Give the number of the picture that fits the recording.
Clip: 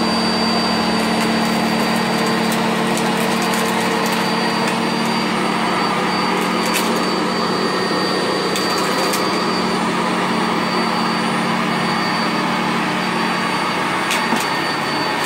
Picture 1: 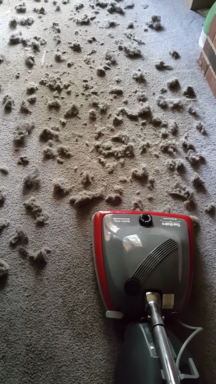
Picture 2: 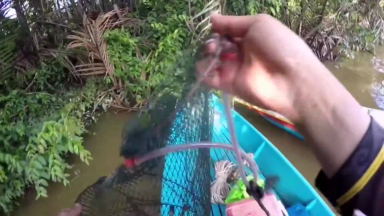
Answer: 1